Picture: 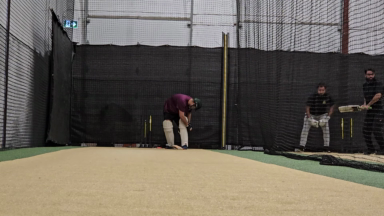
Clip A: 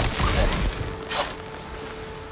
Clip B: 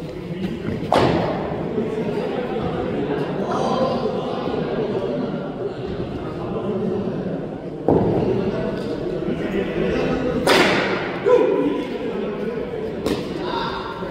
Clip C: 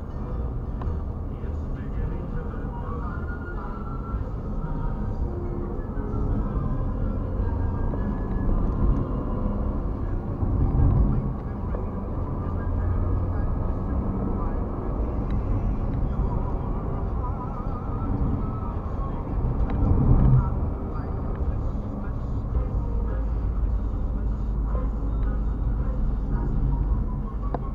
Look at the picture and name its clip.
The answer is B